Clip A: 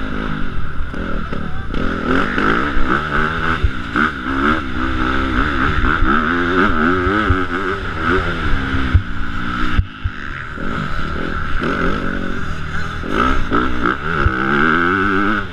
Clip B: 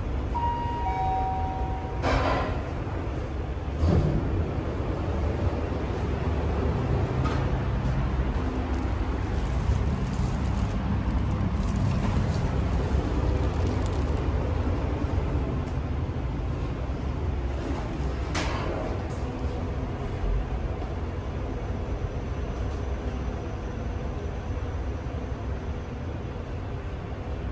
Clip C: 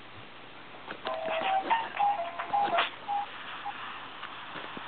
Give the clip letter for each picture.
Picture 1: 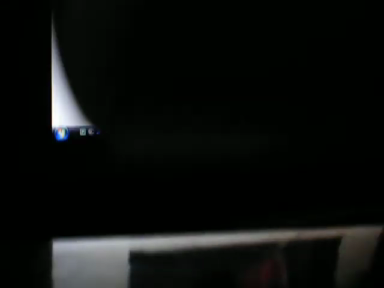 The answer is C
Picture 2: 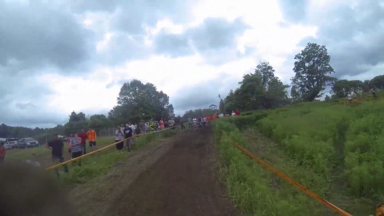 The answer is A